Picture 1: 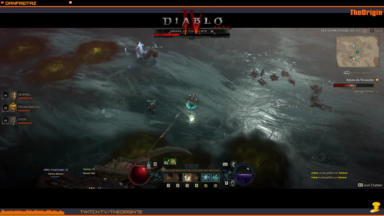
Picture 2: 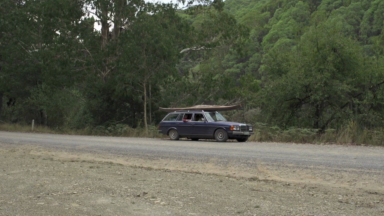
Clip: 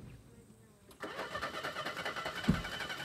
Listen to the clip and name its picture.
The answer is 2